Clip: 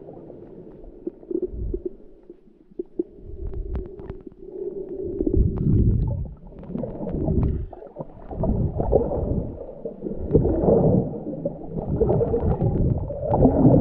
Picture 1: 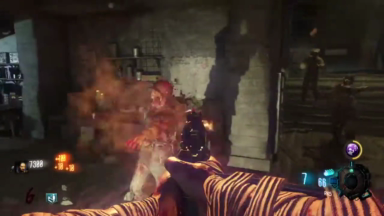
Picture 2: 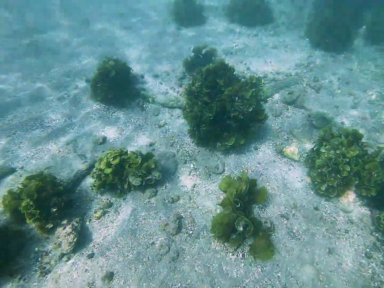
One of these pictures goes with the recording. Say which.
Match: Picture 2